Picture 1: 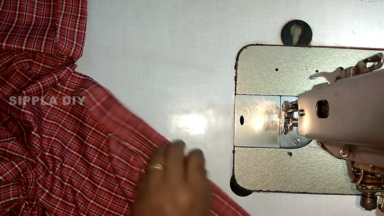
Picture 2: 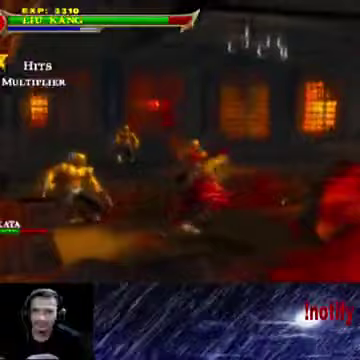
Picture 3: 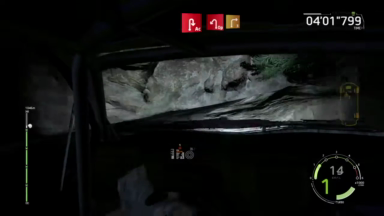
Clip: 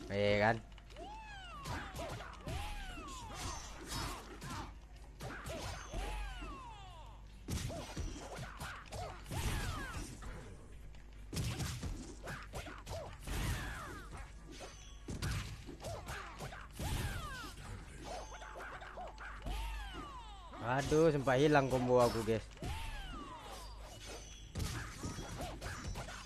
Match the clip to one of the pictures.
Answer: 2